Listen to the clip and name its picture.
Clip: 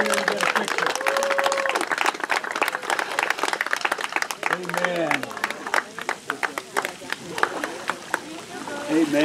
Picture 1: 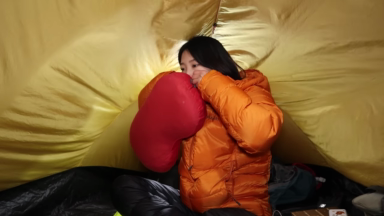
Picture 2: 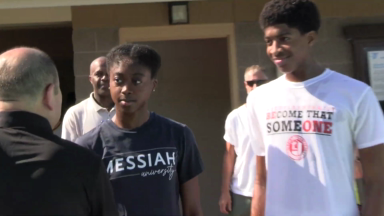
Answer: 2